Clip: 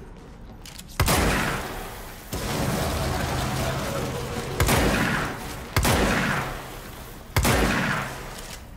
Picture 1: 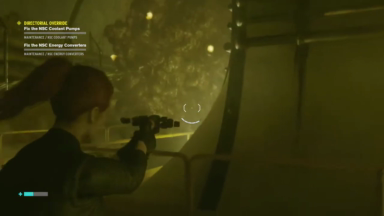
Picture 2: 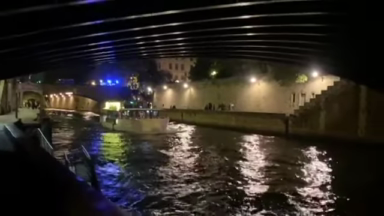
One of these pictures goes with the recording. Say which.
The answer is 1